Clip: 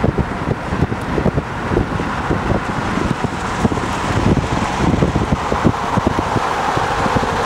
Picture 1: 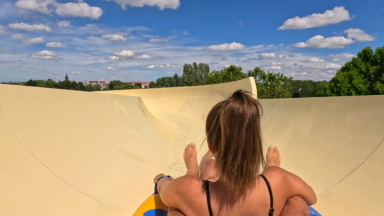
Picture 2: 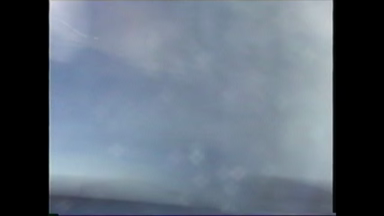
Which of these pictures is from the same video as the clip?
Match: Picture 2